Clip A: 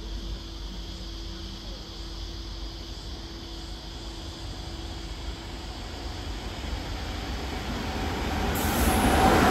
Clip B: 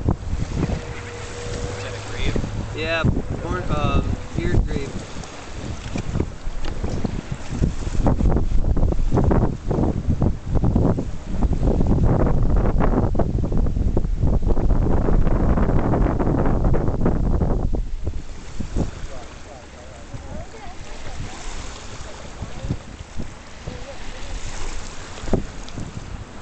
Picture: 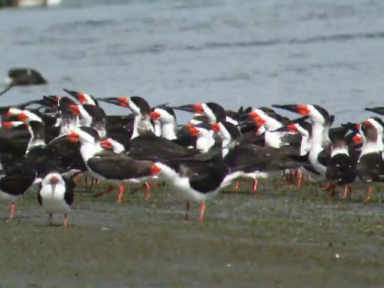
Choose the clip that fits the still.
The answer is B